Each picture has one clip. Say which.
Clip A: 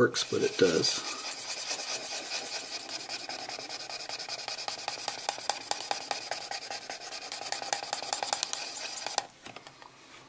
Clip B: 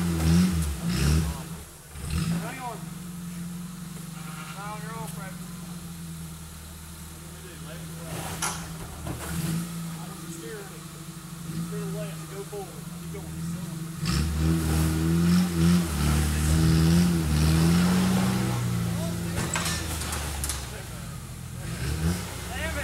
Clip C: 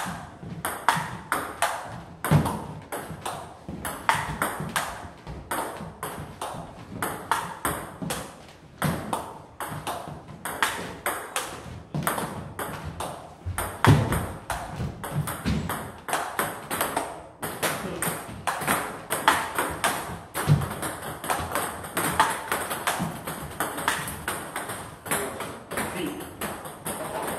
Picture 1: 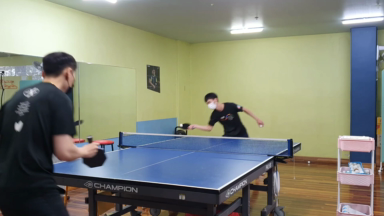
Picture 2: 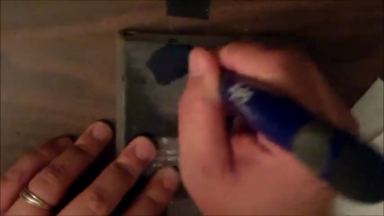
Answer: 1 C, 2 A